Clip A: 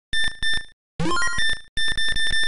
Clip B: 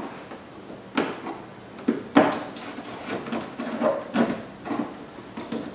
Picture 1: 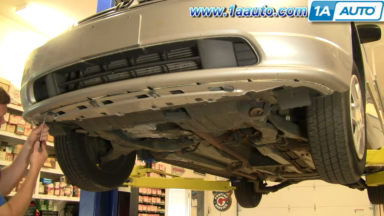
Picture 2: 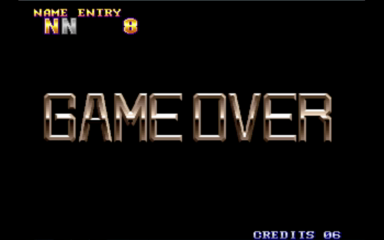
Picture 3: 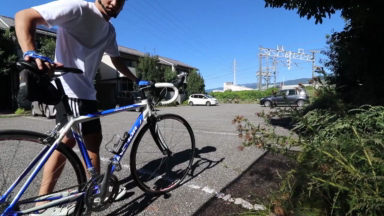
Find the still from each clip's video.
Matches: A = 2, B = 1